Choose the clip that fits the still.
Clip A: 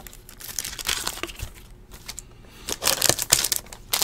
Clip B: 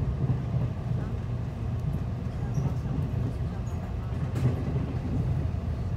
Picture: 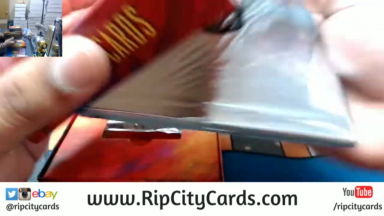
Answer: A